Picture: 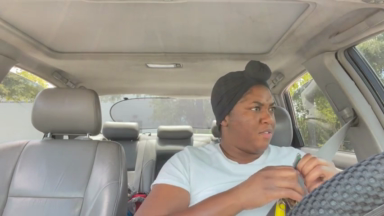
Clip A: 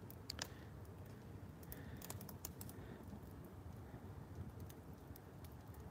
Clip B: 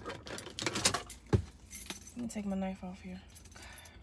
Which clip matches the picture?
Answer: B